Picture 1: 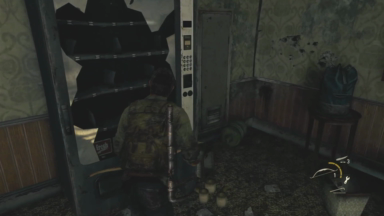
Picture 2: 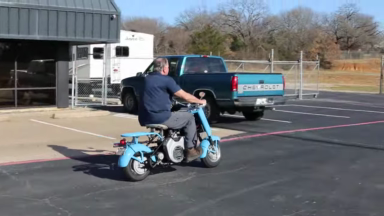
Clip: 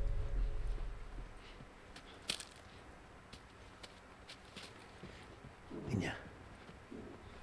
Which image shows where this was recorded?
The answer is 1